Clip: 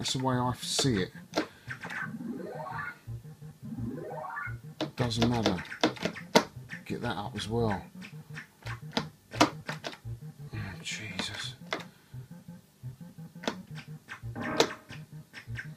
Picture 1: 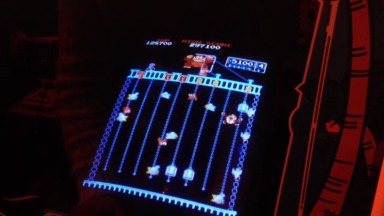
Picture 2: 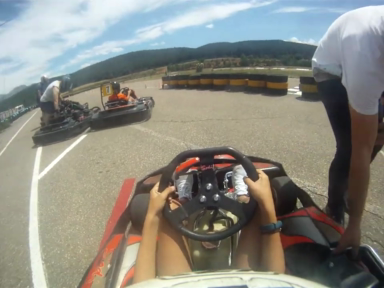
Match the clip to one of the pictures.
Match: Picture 1